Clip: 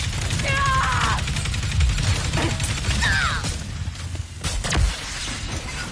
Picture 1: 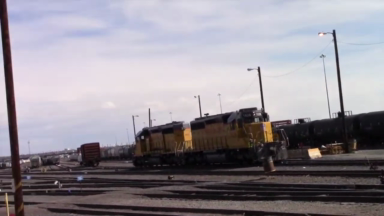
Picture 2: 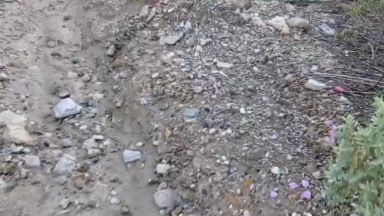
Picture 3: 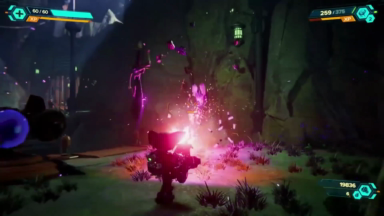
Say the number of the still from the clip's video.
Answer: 3